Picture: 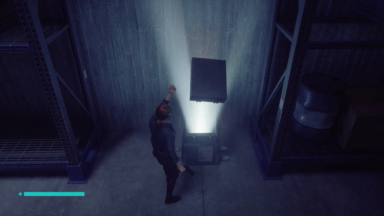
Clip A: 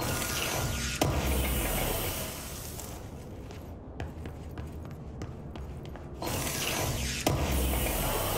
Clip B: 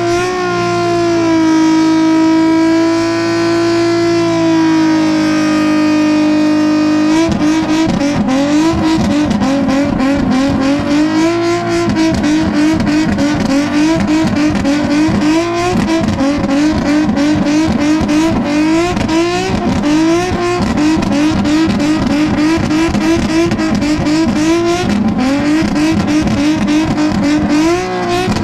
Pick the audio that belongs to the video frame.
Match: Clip A